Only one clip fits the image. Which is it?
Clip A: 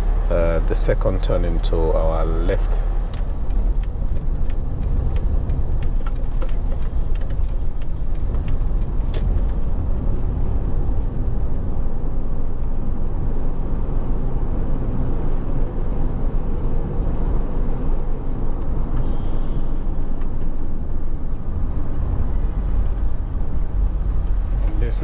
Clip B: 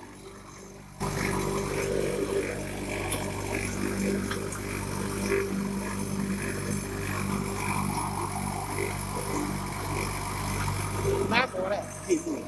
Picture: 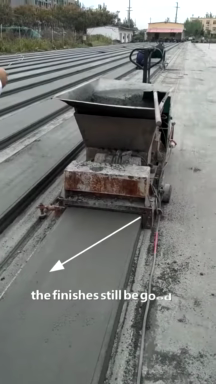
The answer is B